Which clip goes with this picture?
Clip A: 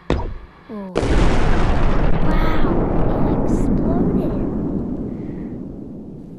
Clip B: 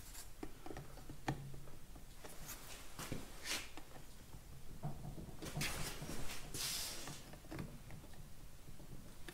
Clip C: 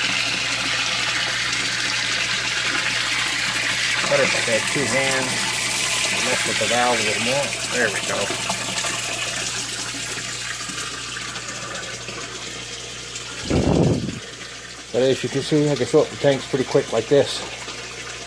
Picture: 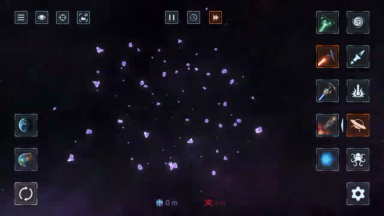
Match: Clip A